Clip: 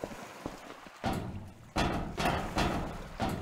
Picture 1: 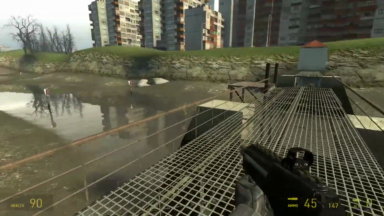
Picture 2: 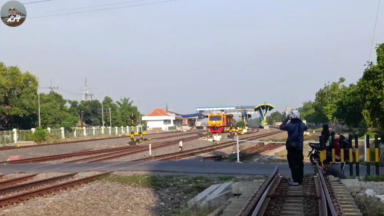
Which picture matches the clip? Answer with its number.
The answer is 1